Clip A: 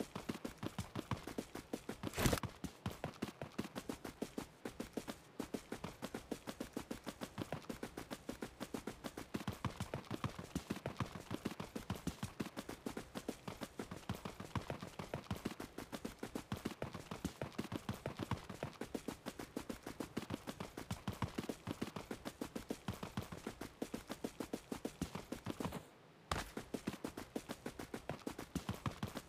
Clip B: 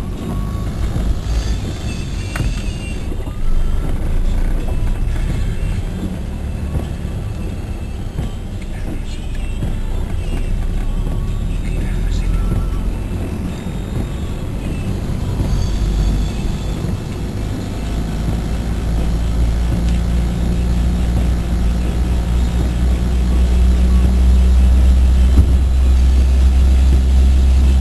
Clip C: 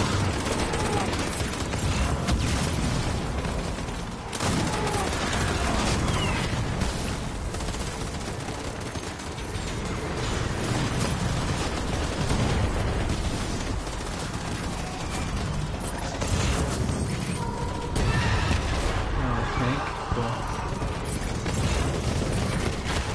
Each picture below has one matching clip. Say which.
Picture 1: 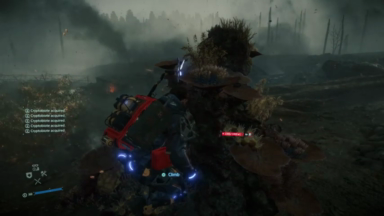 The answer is C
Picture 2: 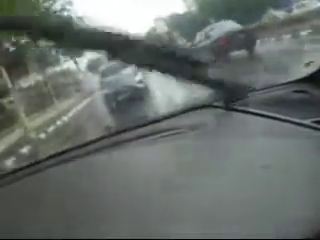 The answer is B